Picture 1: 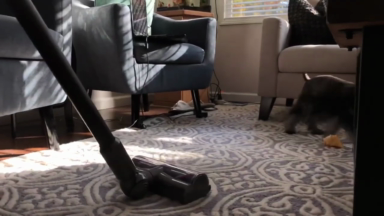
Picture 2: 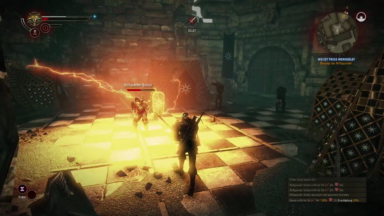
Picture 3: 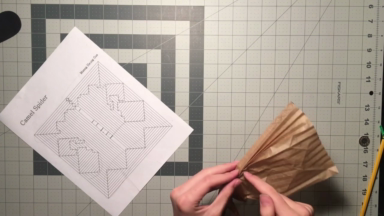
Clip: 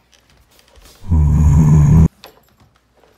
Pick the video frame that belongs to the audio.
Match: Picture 1